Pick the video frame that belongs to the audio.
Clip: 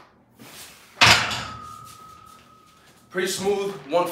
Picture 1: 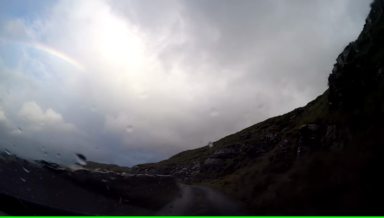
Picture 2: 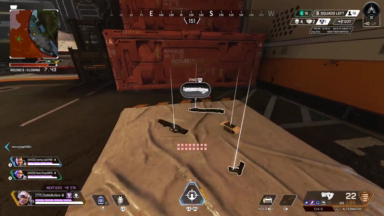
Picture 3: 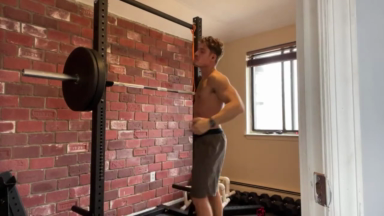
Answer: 3